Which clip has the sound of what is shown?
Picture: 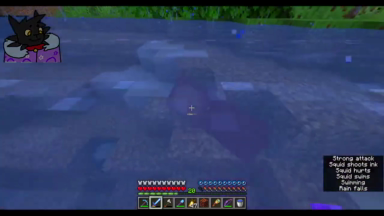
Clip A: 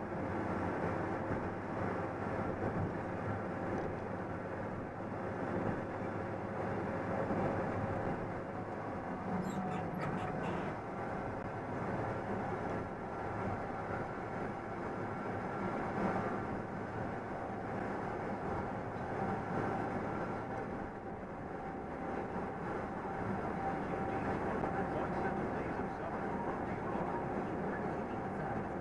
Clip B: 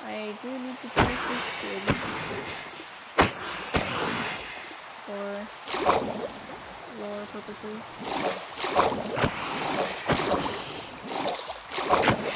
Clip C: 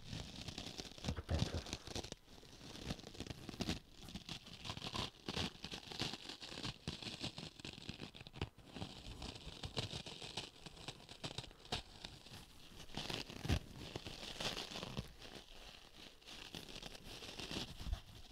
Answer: B